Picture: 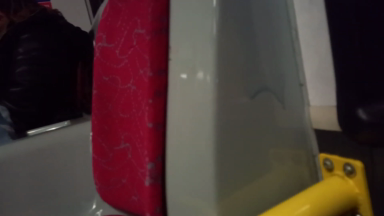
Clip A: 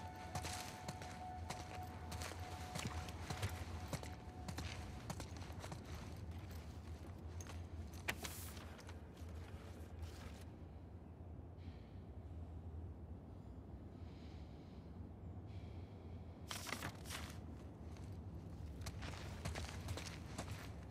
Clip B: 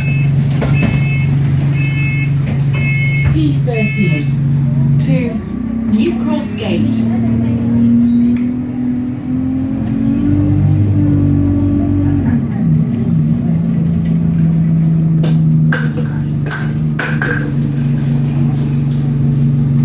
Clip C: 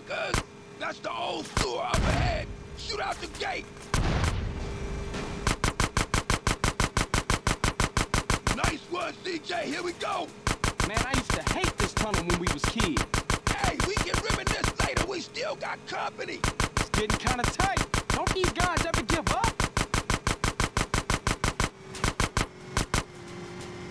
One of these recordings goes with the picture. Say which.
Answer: B